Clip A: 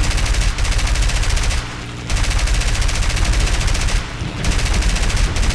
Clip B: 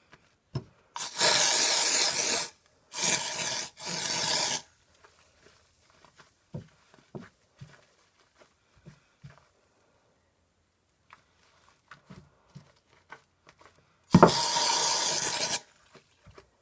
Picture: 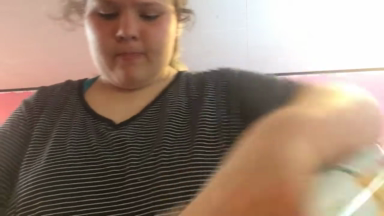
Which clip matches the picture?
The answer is B